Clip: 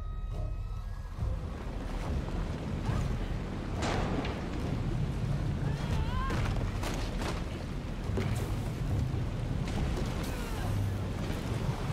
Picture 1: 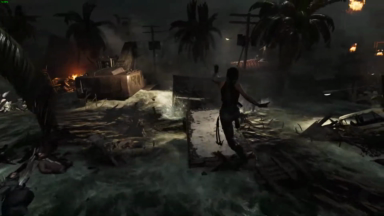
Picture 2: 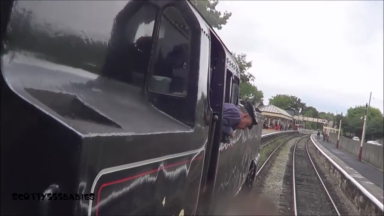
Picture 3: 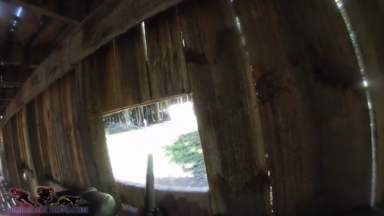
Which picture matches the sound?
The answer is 1